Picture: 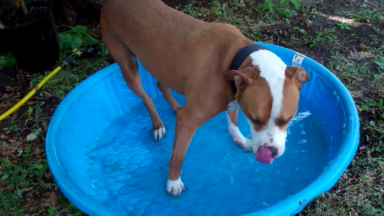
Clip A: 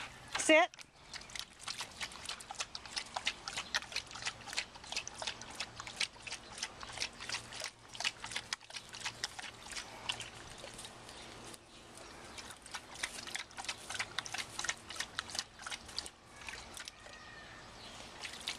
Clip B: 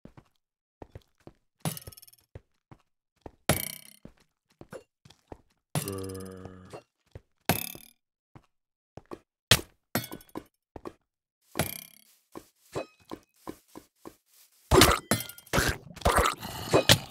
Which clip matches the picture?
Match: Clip A